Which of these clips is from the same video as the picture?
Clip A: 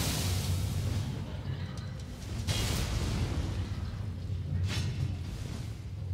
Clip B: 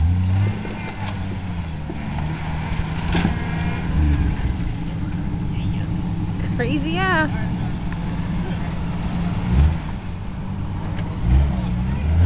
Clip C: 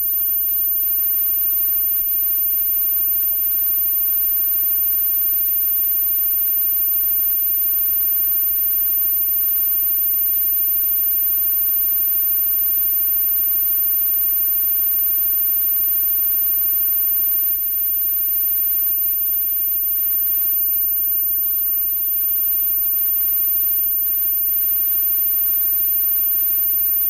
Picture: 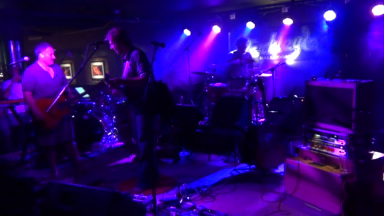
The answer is C